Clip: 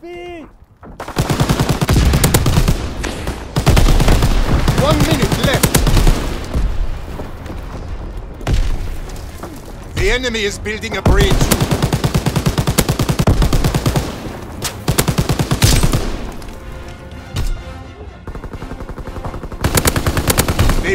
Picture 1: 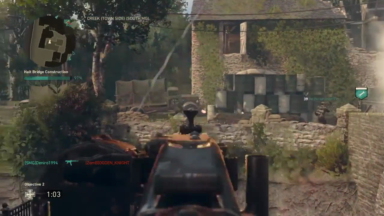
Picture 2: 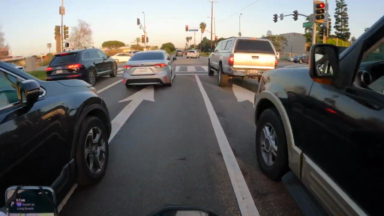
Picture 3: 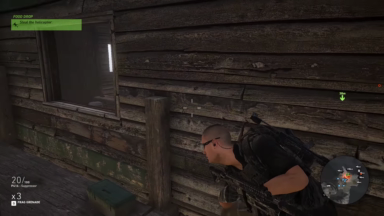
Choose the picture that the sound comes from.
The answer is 1